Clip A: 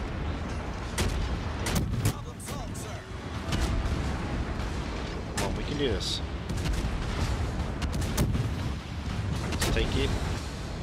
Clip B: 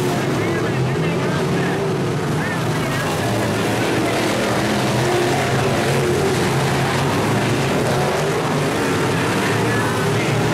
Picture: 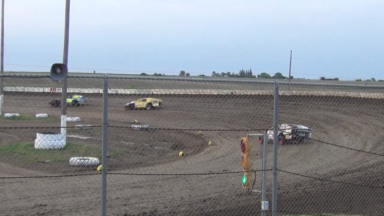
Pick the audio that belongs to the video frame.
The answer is B